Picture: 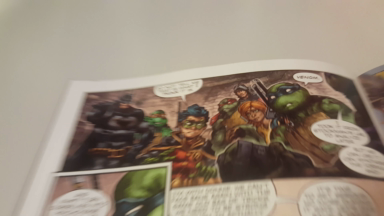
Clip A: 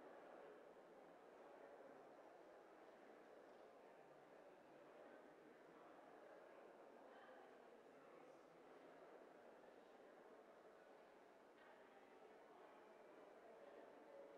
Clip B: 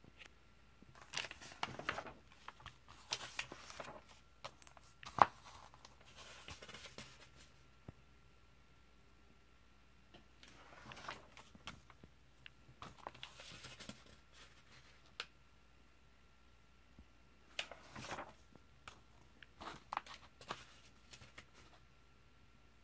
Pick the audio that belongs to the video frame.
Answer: B